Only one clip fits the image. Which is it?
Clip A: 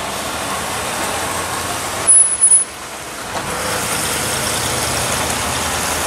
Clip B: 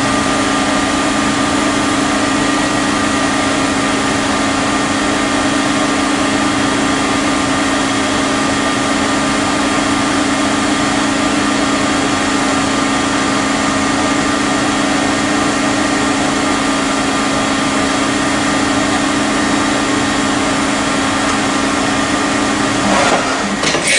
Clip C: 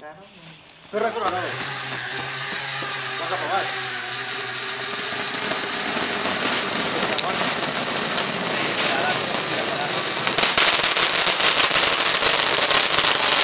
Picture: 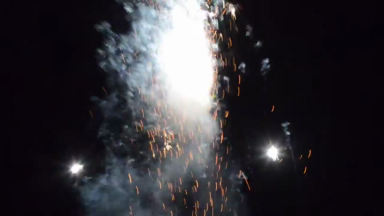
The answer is C